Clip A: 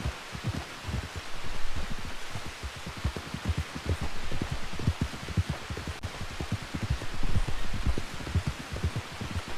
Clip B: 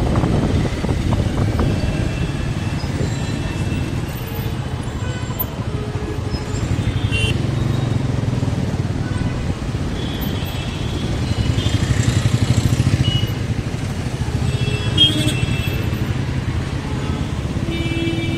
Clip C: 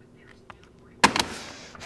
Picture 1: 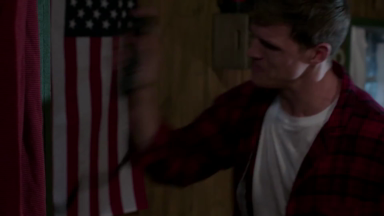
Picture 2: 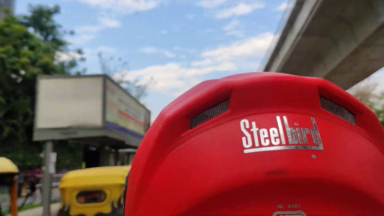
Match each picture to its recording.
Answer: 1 C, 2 B